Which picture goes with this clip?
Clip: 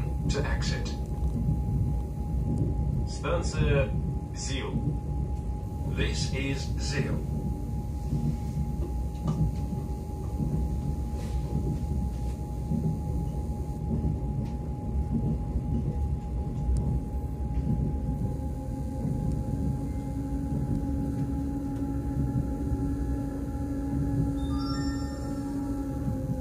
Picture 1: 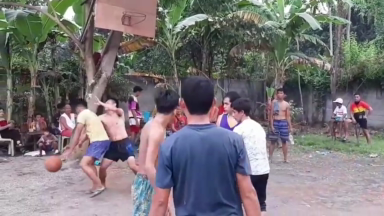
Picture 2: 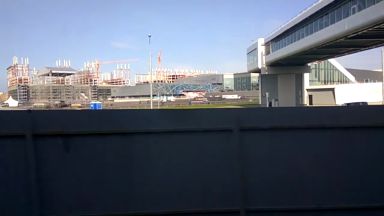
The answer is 2